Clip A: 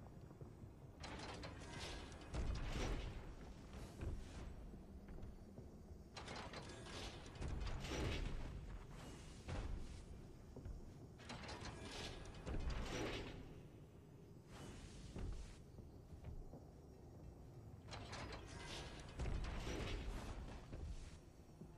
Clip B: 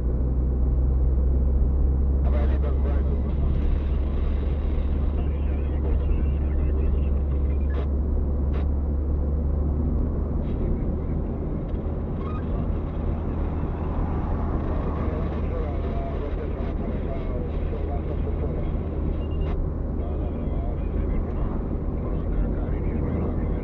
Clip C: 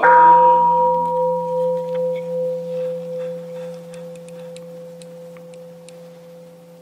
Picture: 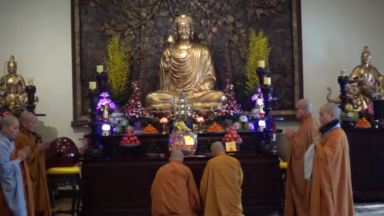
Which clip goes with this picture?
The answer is C